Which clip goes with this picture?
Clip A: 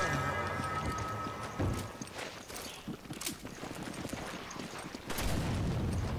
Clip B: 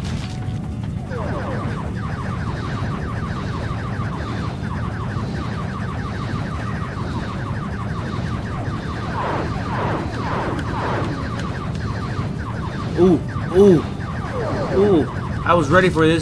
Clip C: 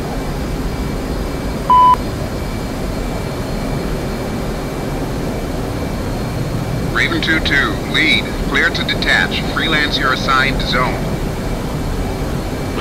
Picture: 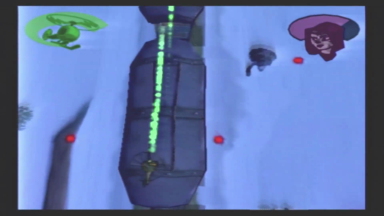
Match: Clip B